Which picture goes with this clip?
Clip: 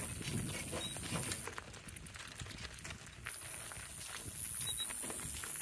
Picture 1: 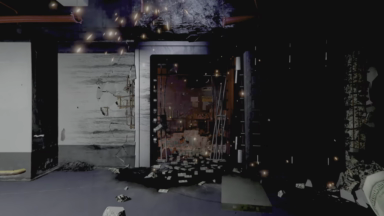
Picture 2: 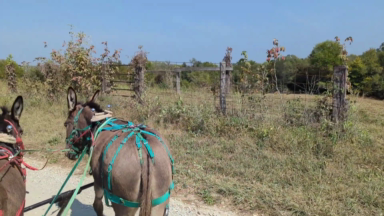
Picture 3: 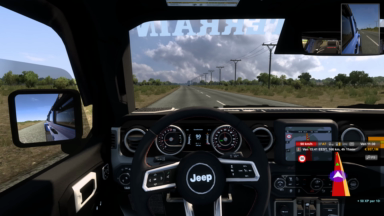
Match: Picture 2